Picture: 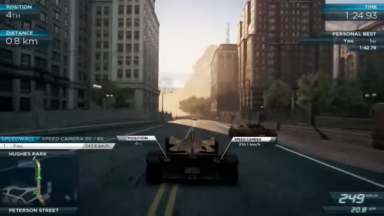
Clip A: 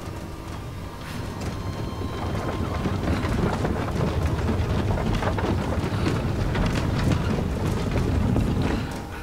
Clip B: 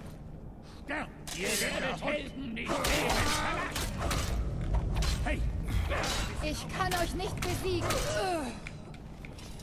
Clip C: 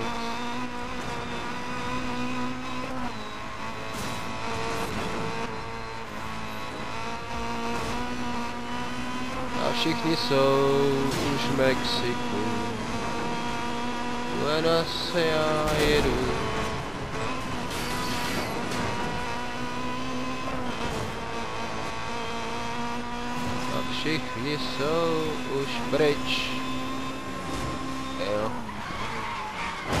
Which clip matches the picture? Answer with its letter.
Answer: C